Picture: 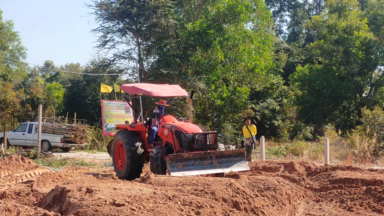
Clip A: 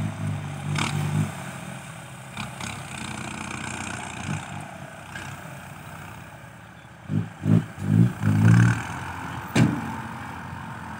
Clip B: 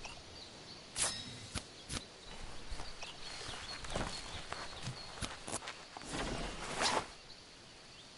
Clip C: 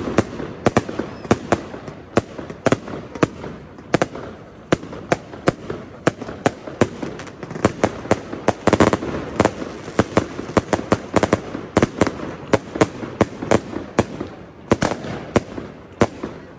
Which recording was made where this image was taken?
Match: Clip A